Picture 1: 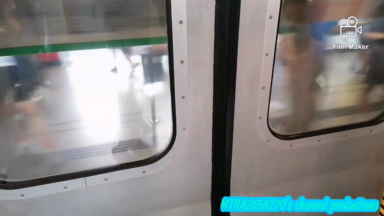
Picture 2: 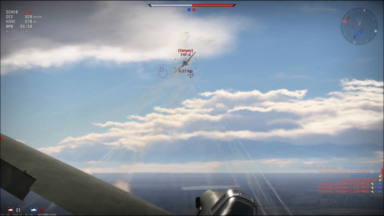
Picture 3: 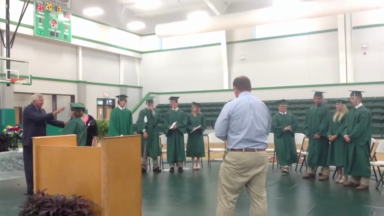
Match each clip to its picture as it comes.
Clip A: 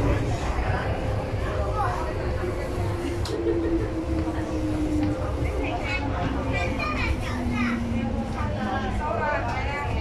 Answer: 1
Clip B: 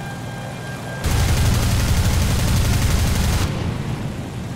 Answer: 2